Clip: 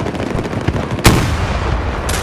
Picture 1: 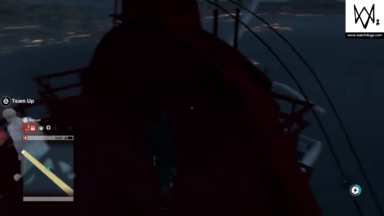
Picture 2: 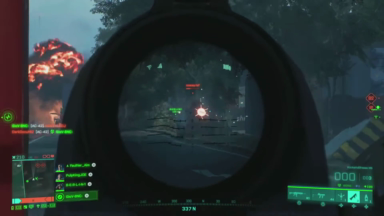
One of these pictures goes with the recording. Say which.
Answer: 2